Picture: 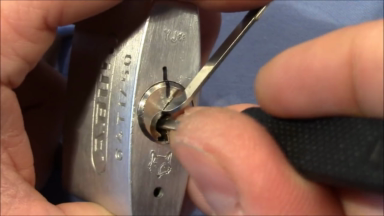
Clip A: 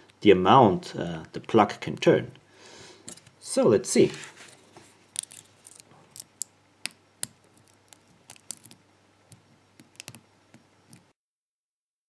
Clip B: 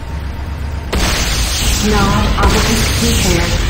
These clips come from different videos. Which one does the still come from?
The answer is A